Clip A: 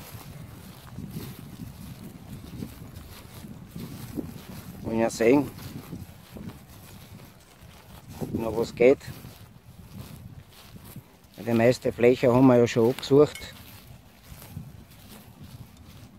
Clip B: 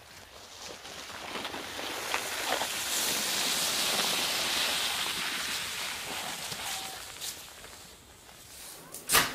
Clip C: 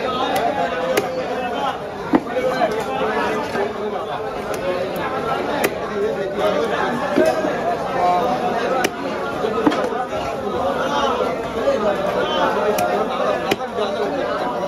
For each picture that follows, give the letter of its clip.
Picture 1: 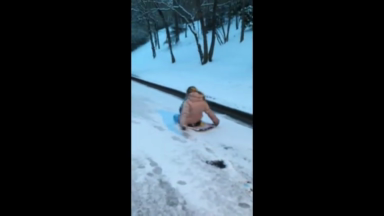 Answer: B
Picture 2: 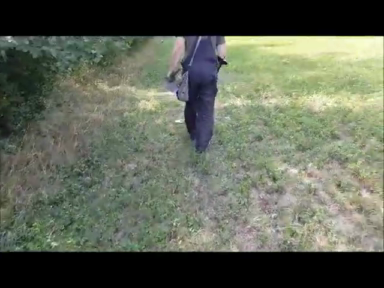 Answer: A